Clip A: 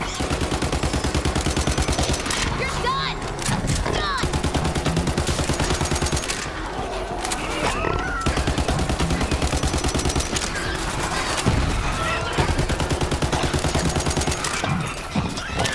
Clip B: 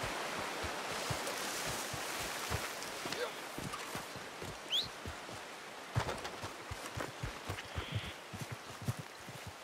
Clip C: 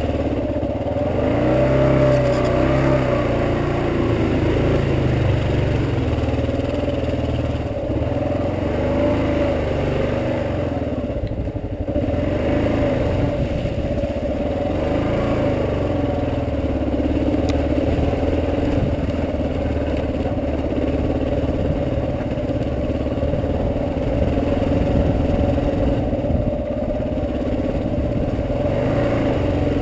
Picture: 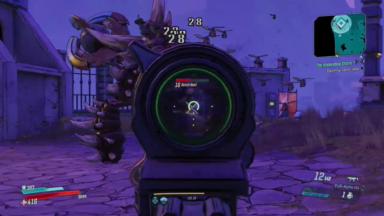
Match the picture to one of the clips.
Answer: A